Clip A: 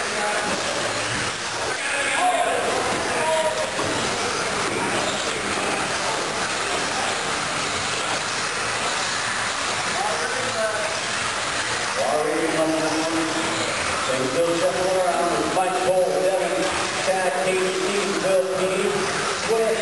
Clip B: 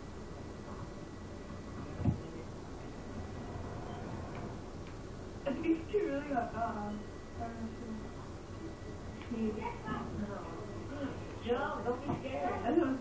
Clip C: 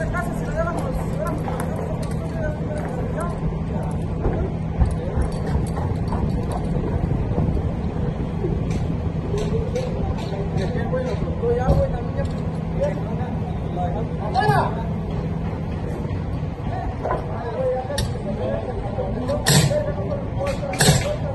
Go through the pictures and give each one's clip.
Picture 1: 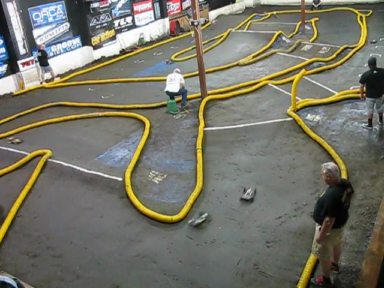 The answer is A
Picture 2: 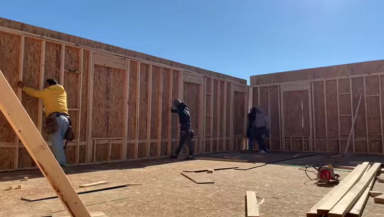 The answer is C